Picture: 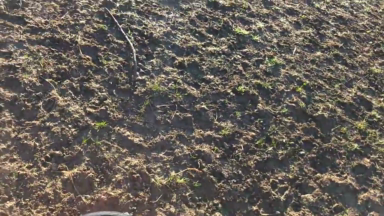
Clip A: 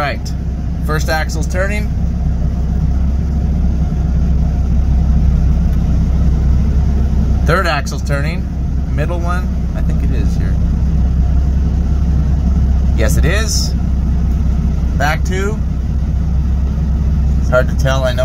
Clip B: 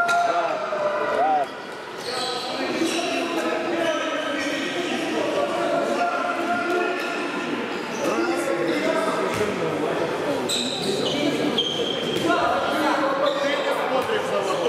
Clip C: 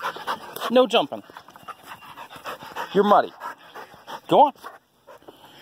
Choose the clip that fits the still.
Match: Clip C